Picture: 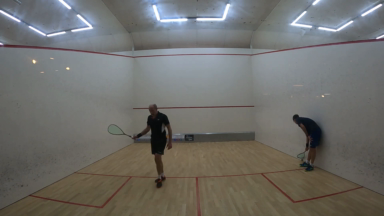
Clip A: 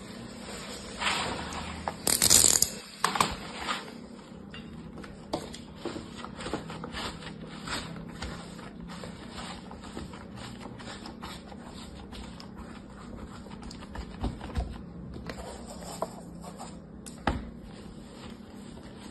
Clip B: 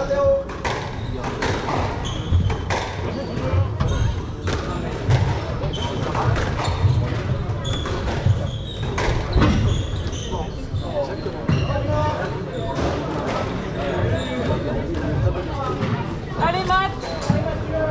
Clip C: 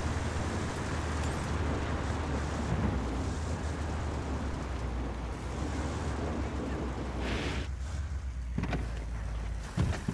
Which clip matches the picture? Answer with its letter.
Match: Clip B